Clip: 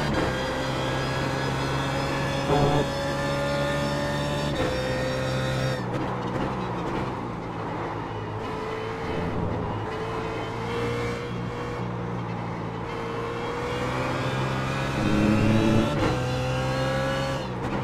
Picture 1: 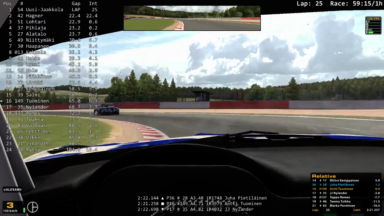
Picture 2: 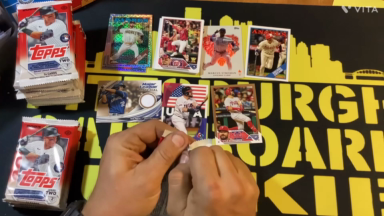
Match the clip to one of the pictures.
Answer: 1